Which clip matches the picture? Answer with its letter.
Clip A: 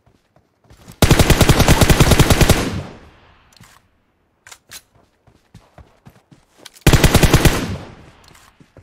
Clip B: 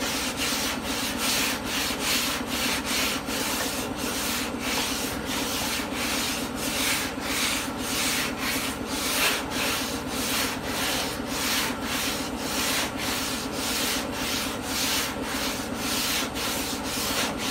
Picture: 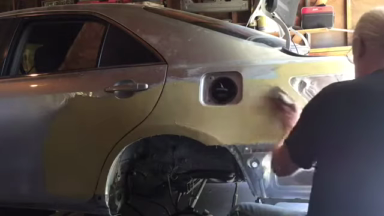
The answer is B